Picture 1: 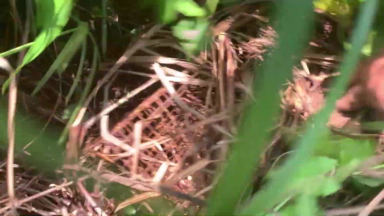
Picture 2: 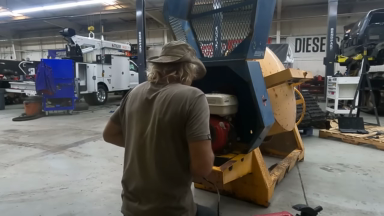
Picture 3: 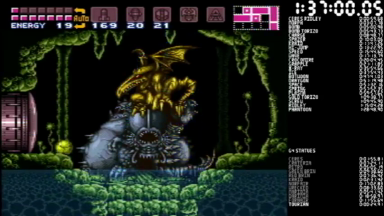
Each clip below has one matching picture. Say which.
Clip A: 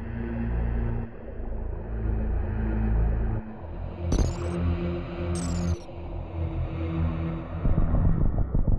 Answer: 3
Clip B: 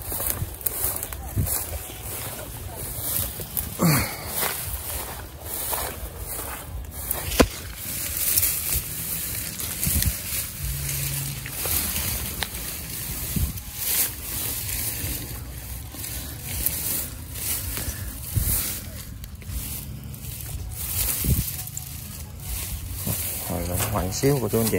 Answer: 1